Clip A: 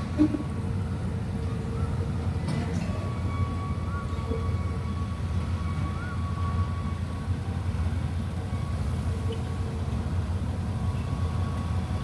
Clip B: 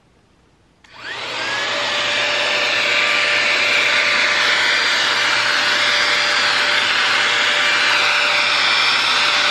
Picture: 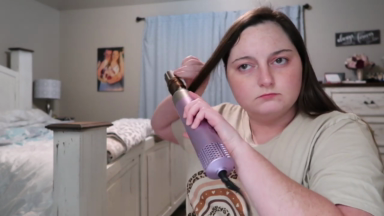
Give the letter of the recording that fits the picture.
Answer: B